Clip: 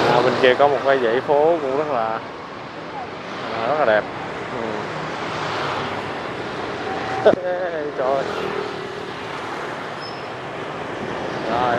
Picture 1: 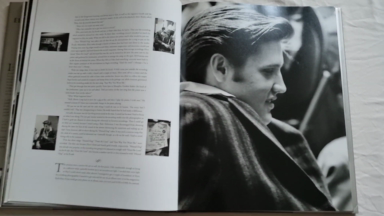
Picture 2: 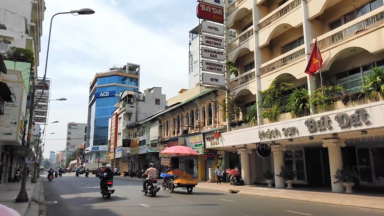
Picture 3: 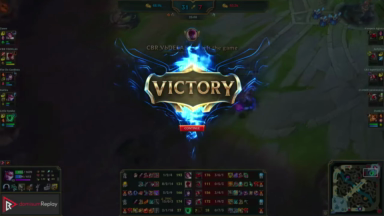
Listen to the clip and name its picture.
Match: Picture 2